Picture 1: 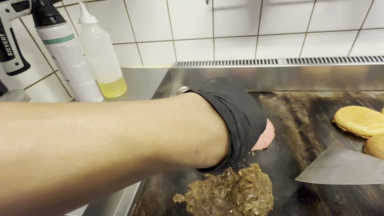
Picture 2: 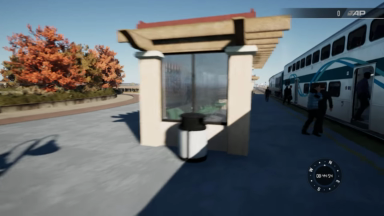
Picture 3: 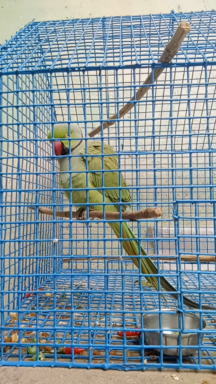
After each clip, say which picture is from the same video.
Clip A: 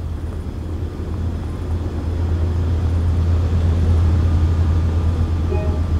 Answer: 2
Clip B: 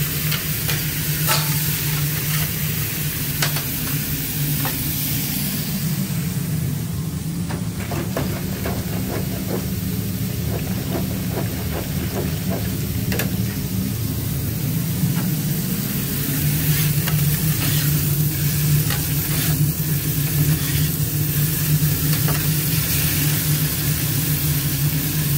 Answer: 1